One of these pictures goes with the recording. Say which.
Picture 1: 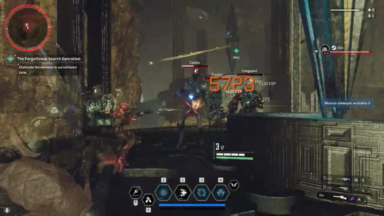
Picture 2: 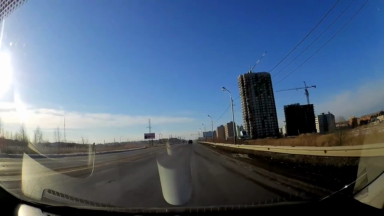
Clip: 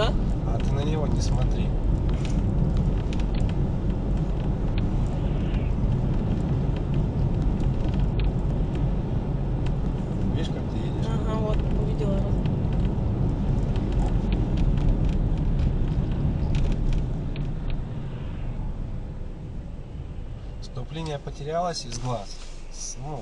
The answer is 2